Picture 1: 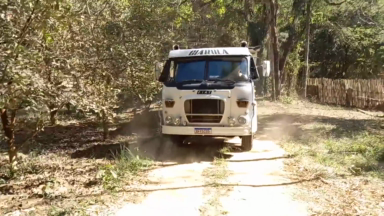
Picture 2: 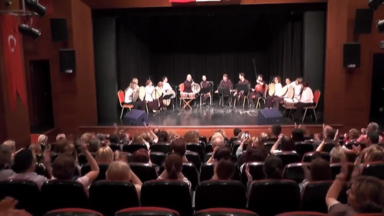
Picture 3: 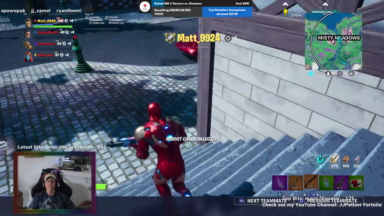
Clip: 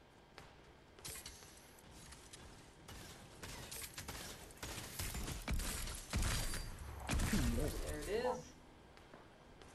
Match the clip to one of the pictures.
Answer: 3